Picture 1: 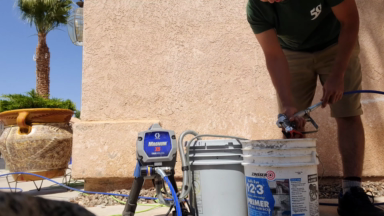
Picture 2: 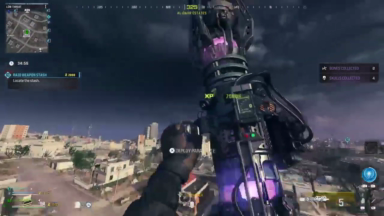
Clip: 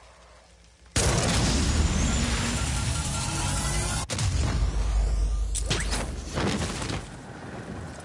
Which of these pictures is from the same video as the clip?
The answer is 2